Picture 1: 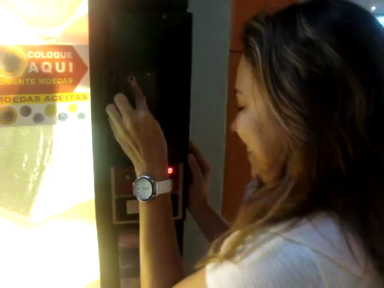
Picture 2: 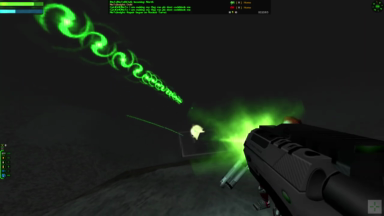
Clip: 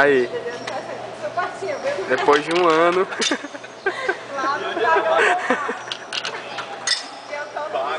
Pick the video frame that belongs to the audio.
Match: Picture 1